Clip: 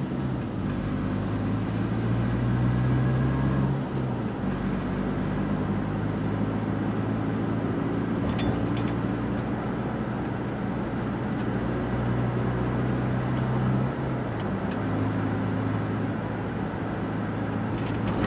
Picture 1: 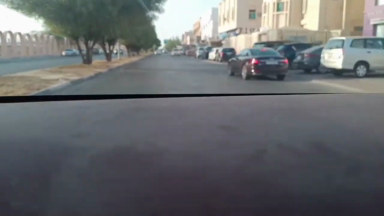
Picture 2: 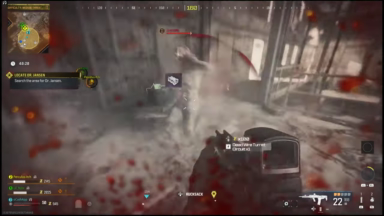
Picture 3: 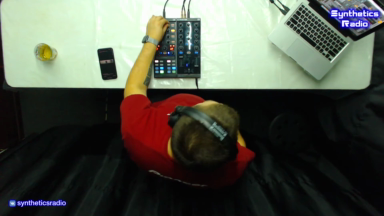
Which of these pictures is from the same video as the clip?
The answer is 1